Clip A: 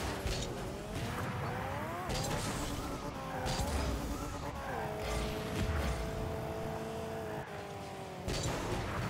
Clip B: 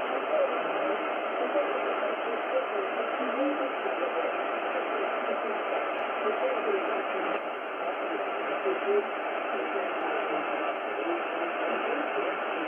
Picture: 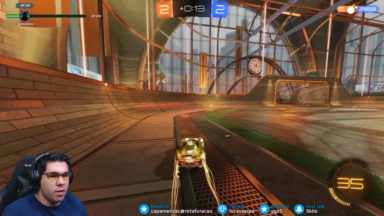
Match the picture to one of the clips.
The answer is A